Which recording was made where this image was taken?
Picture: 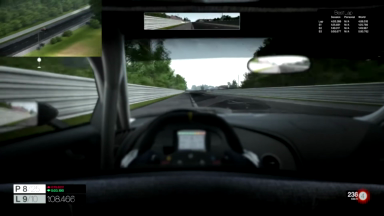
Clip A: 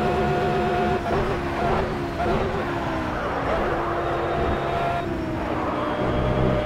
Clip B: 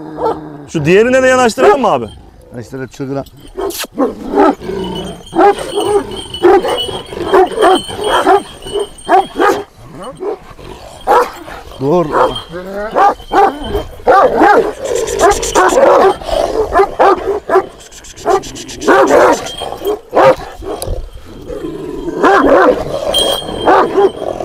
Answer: A